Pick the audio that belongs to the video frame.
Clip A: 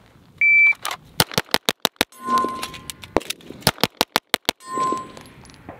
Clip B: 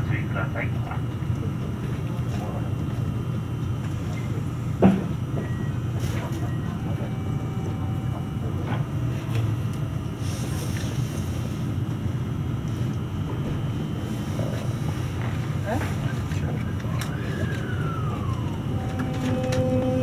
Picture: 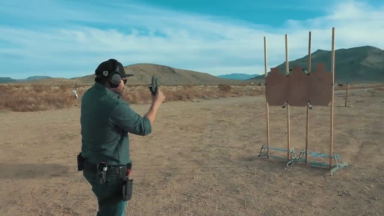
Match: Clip A